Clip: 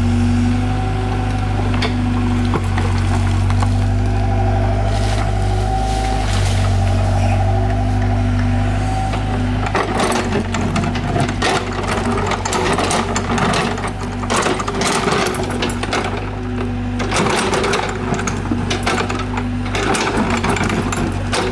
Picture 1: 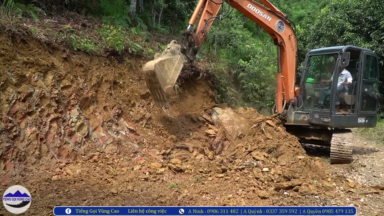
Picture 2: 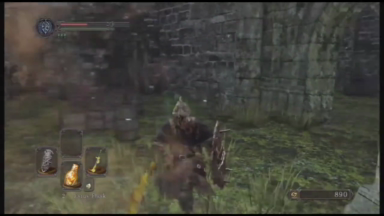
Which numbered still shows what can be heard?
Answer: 1